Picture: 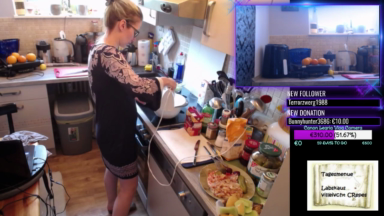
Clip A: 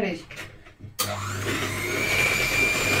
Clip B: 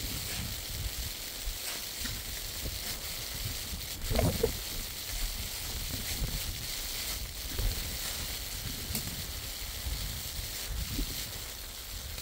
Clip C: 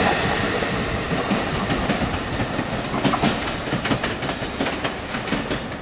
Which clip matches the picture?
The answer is A